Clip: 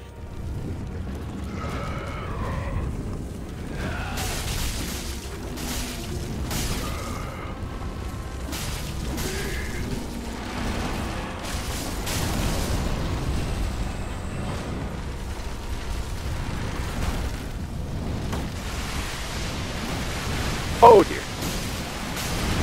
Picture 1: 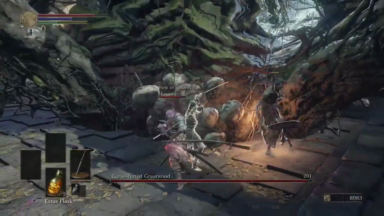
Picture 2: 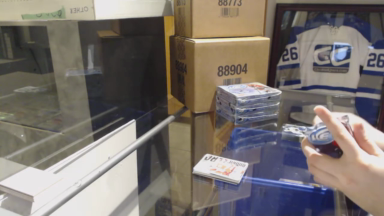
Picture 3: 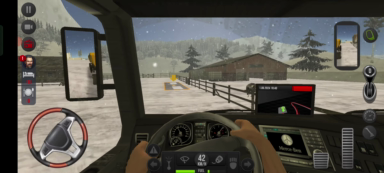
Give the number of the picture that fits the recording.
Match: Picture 1